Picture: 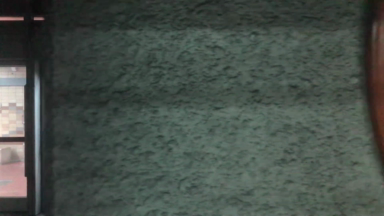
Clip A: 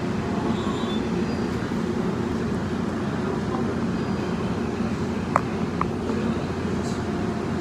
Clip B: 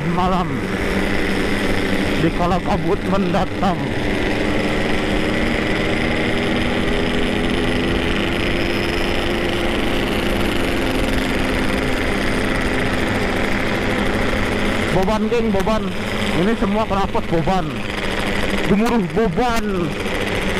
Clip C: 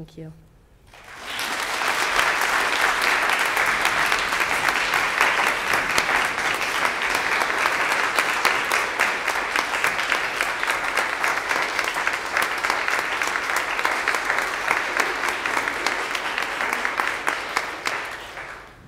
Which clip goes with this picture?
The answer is A